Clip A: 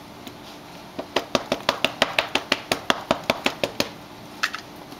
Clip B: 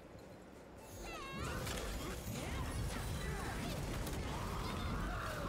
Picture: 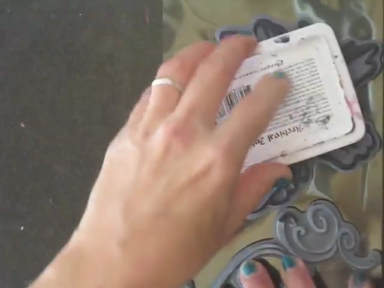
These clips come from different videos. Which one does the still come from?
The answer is A